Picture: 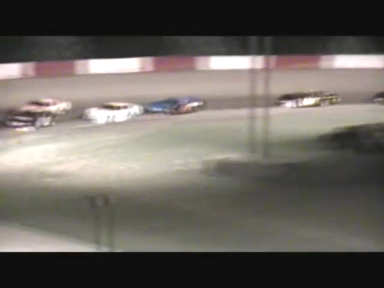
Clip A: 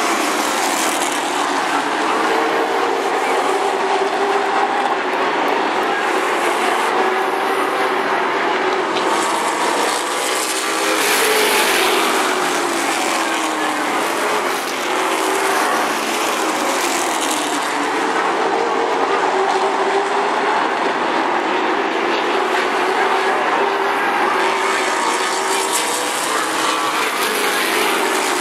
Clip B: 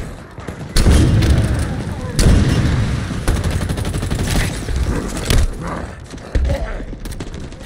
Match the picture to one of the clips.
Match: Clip A